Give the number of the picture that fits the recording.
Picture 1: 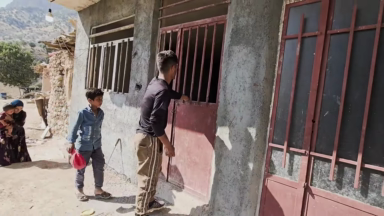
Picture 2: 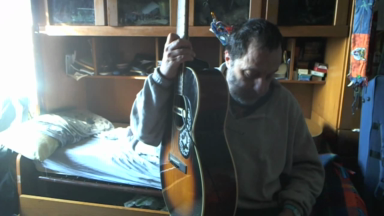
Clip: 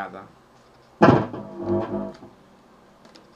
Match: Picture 2